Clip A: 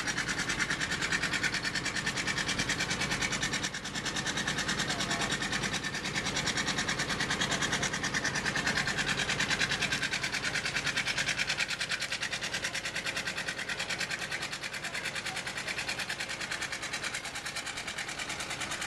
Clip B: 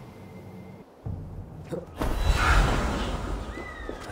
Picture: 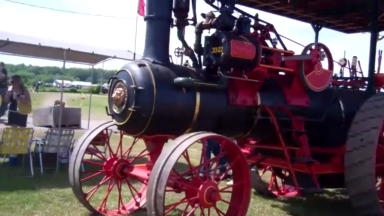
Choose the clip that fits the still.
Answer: A